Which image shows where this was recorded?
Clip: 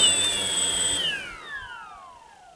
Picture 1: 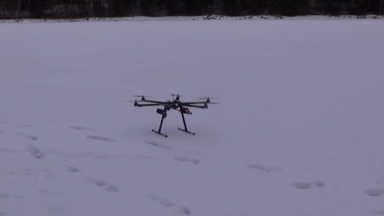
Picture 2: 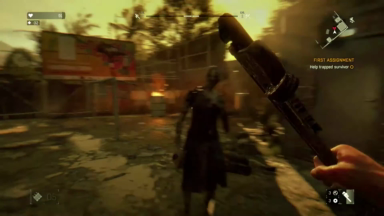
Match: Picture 1